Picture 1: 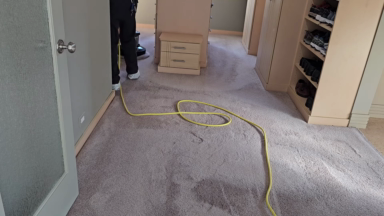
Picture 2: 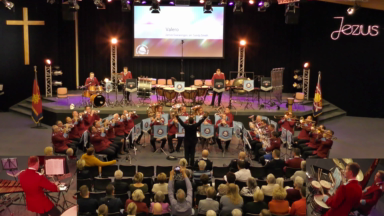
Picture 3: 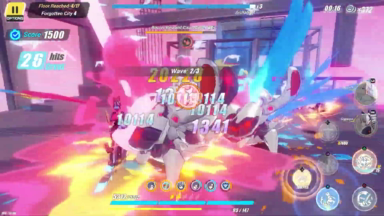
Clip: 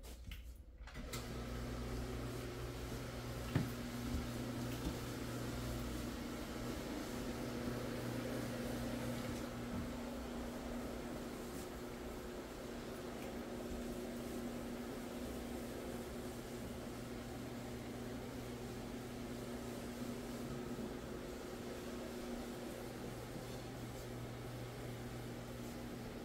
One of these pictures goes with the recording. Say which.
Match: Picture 1